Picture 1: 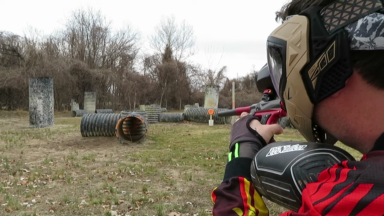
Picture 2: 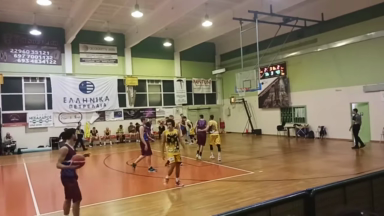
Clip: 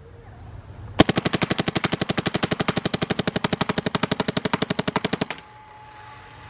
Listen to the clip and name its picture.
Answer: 1